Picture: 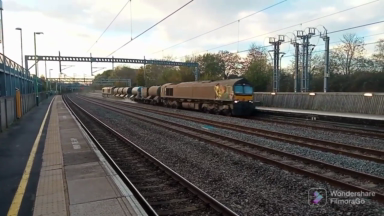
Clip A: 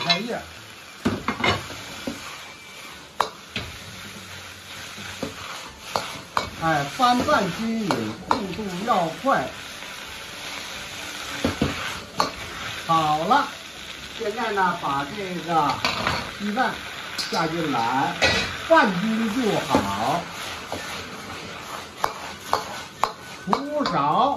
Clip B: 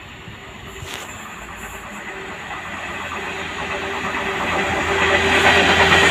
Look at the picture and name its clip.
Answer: B